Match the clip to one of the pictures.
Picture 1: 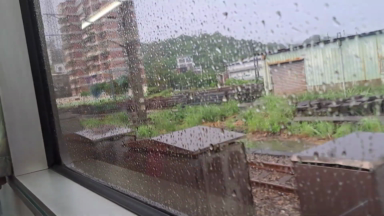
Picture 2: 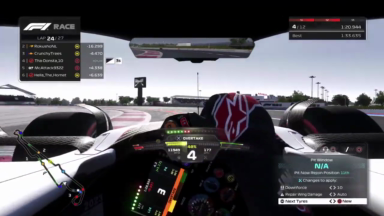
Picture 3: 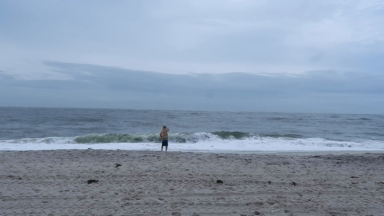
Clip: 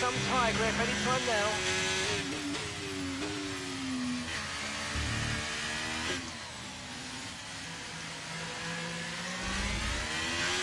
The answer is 2